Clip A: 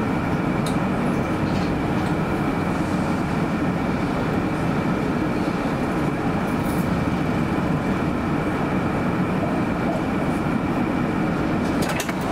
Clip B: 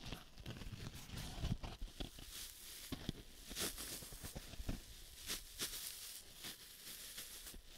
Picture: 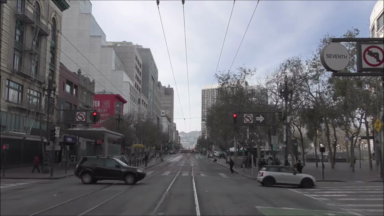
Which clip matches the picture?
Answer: A